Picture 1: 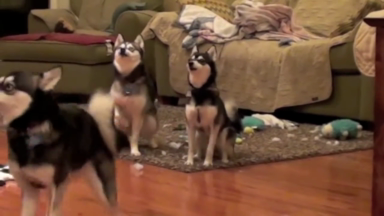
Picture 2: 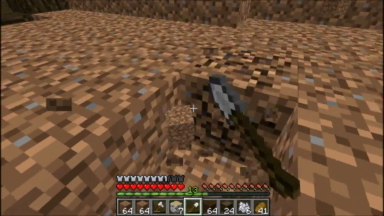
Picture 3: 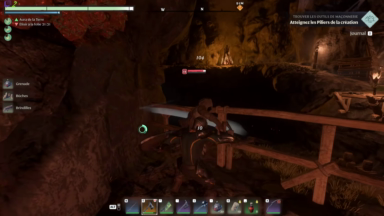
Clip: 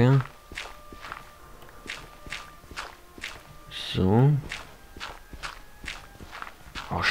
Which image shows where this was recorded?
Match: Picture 2